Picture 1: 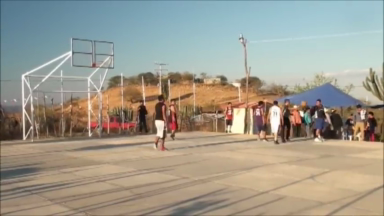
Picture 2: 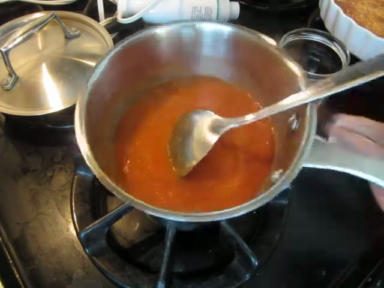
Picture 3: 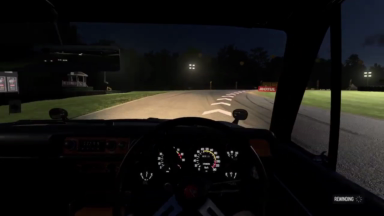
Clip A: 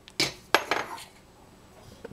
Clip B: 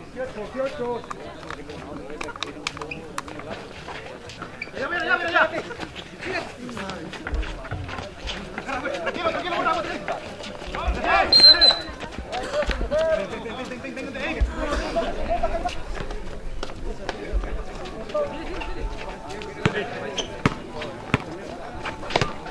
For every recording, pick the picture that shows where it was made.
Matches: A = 2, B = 1